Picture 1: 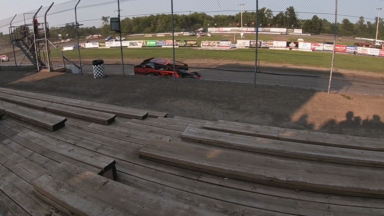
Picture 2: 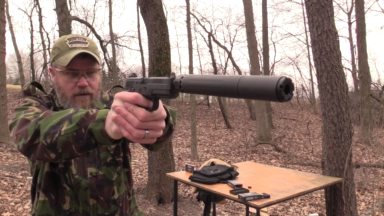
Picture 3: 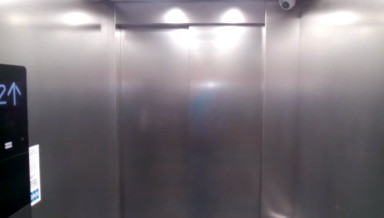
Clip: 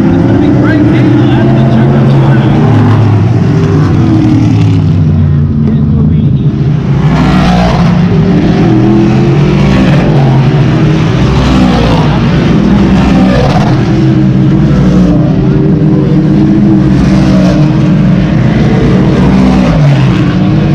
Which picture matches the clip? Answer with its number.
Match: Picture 1